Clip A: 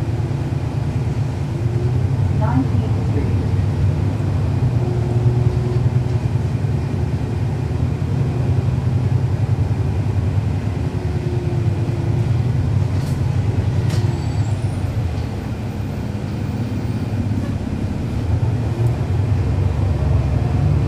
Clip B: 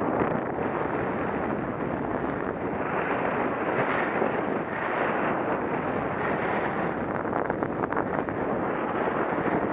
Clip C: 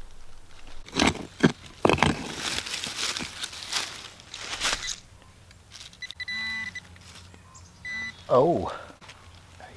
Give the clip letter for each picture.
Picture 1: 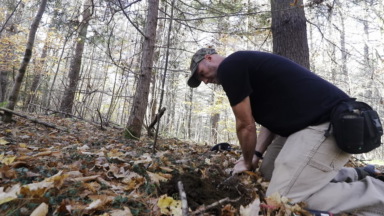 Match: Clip C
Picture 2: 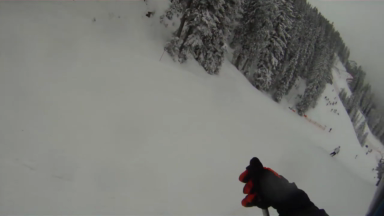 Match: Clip B